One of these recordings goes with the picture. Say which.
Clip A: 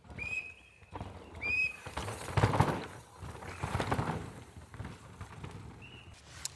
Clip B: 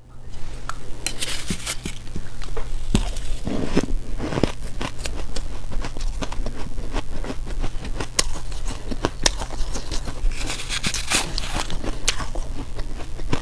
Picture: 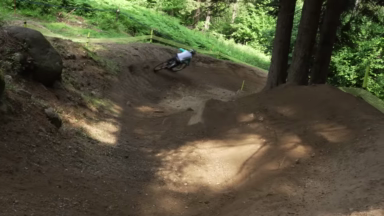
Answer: A